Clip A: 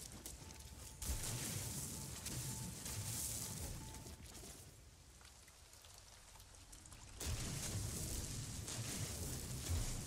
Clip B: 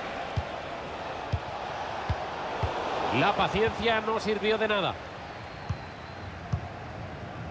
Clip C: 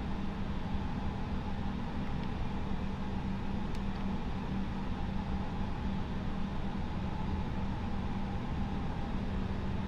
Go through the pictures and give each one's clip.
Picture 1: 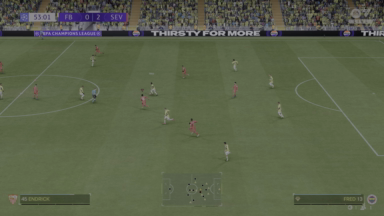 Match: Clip B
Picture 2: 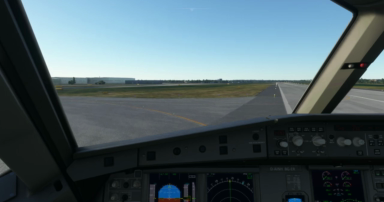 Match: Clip C